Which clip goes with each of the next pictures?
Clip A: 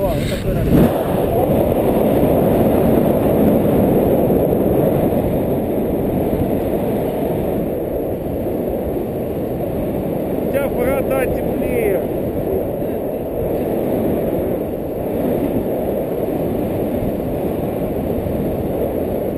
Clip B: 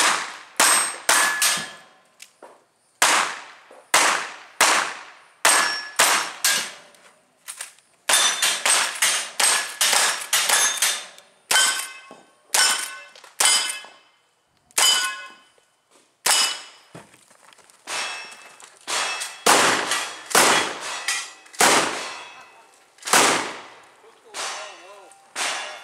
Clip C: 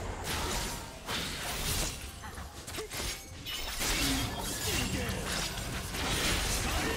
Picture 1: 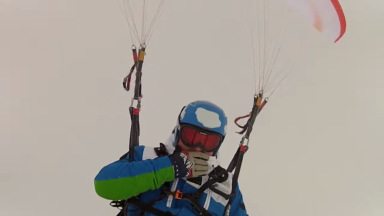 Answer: A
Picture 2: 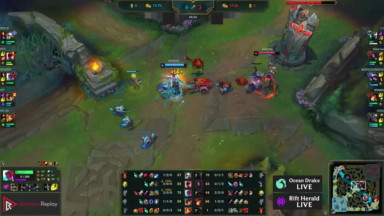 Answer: C